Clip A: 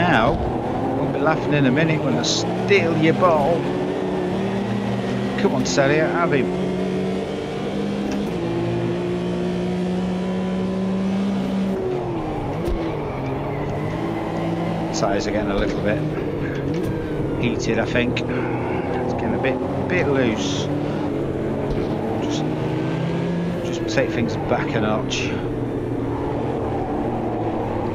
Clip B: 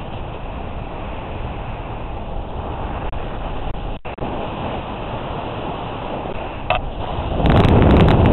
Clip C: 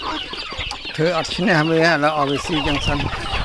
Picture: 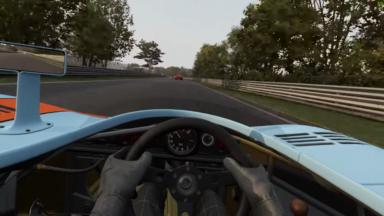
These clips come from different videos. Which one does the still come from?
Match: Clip A